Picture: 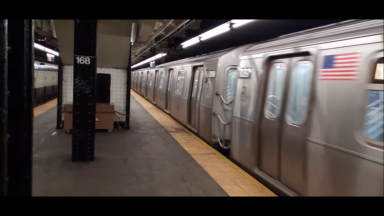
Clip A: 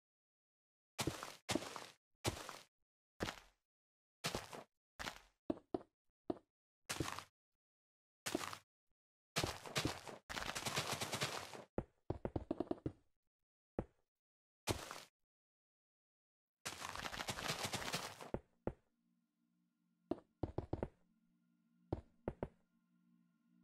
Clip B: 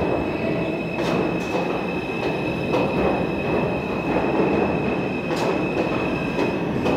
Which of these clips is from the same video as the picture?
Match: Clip B